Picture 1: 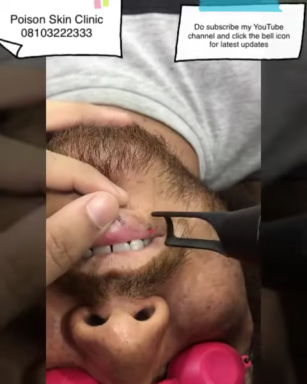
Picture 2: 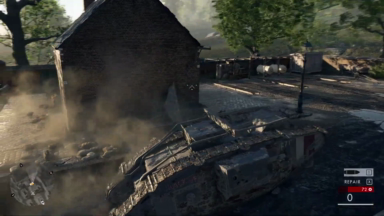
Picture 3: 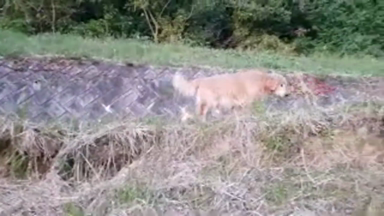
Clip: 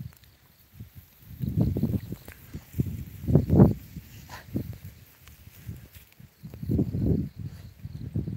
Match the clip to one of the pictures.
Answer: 3